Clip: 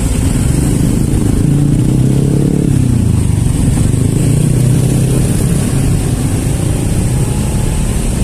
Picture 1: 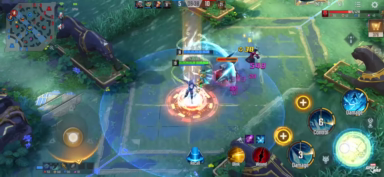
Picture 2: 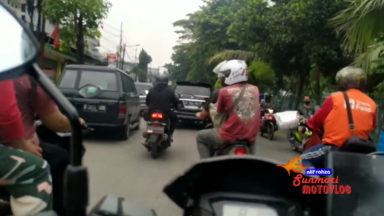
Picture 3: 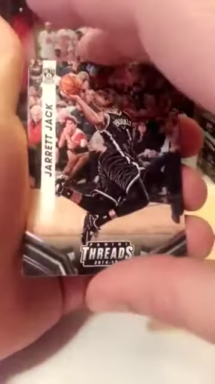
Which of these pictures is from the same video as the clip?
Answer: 2